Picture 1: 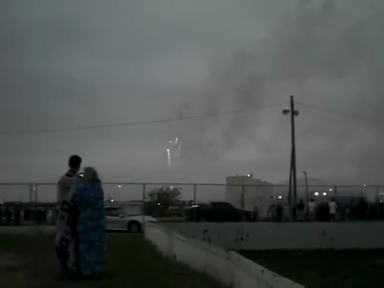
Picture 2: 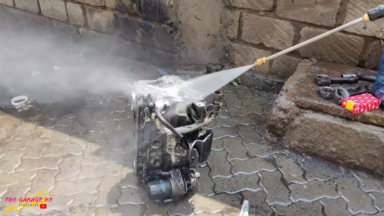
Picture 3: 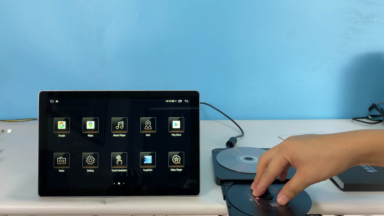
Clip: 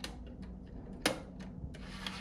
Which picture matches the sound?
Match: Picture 3